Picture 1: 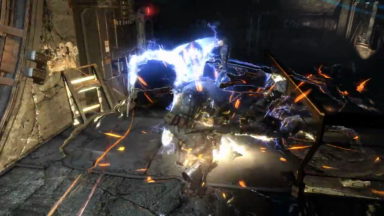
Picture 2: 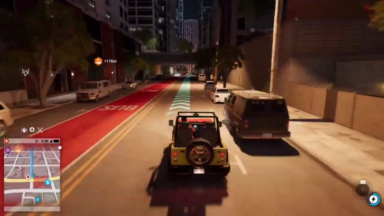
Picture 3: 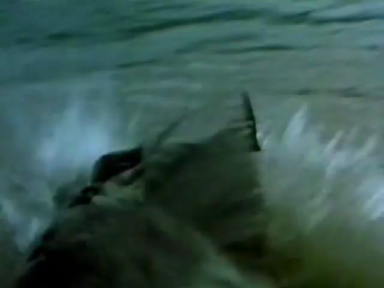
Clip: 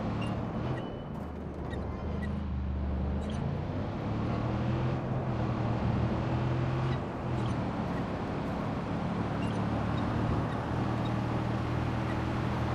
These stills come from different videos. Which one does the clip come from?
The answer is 2